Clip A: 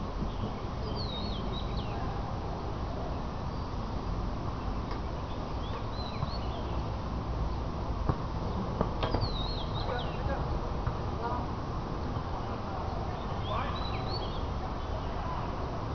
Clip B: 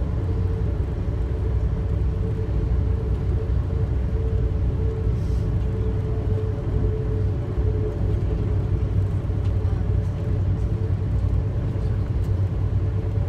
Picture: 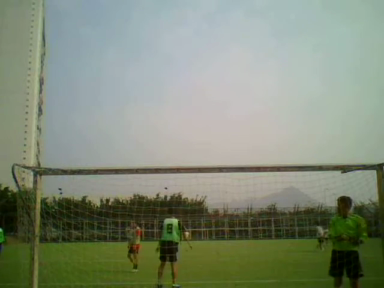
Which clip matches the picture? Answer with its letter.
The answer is A